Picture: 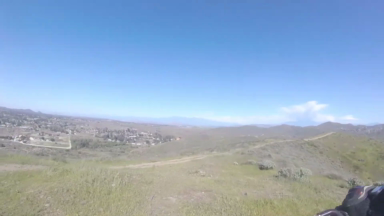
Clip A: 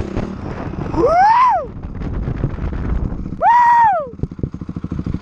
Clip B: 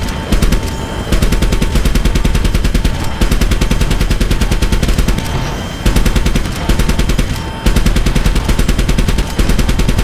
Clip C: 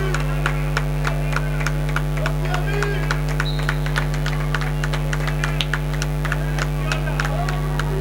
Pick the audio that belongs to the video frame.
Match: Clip A